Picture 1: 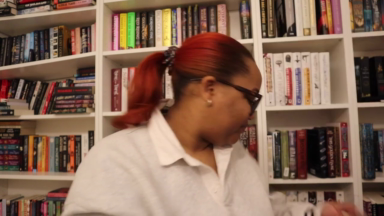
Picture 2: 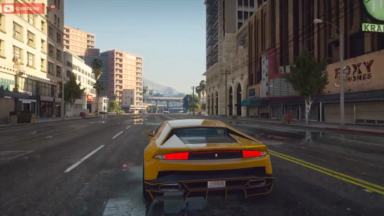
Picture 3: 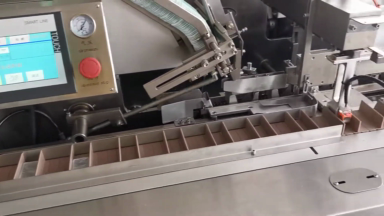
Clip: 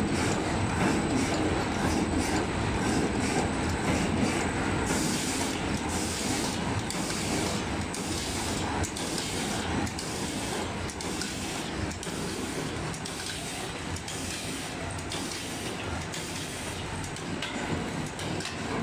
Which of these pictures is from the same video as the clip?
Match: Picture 3